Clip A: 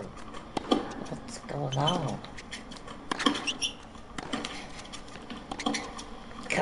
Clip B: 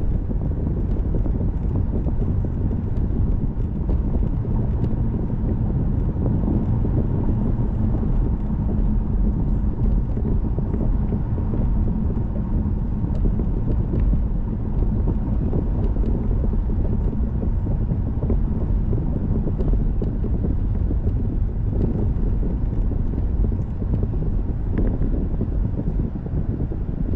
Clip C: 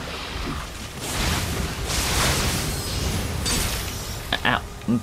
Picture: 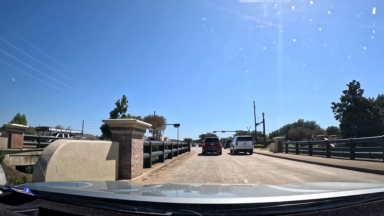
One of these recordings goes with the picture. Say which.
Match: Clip B